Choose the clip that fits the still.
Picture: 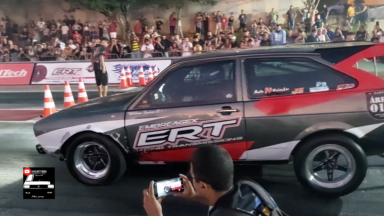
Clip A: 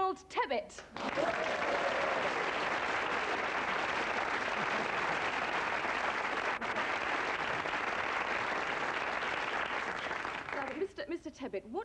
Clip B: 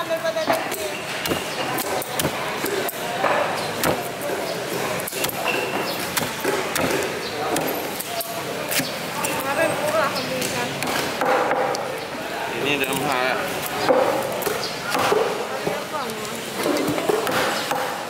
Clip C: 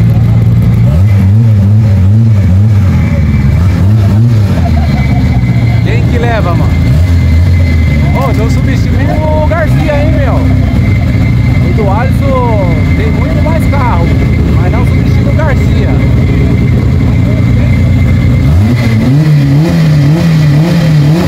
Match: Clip C